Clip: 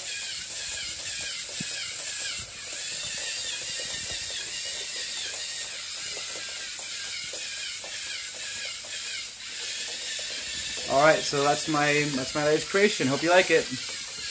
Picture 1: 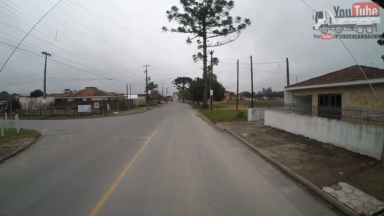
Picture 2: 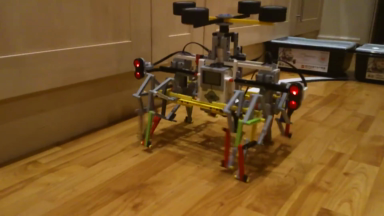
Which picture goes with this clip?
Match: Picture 2